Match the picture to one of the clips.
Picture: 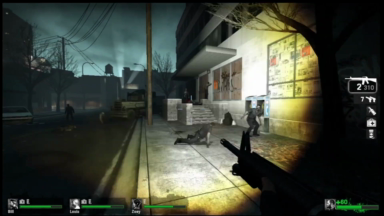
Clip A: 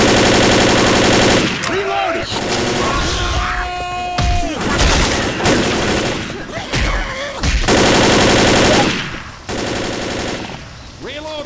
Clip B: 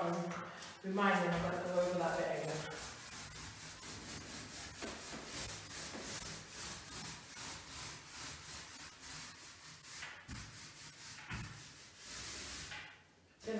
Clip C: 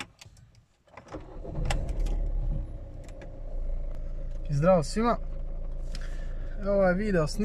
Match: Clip A